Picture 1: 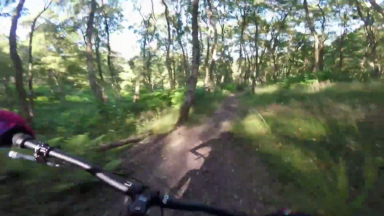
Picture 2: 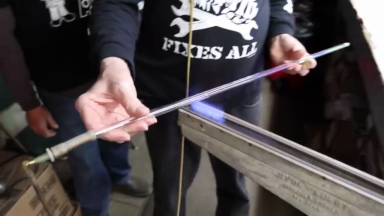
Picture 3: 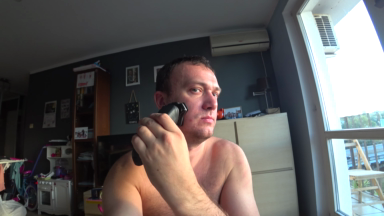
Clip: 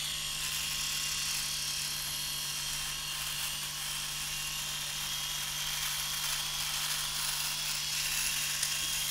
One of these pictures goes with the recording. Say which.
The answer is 3